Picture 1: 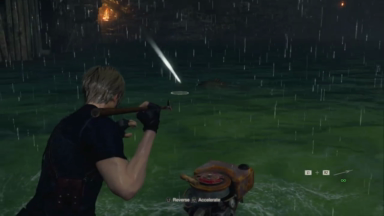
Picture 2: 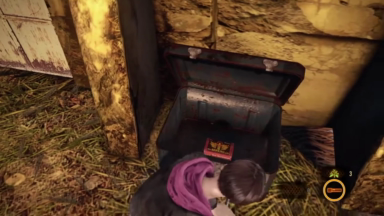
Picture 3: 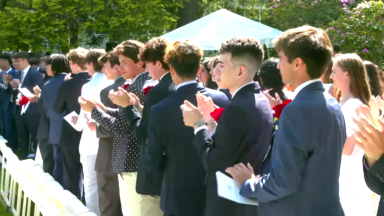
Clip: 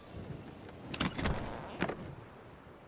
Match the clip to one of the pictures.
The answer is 2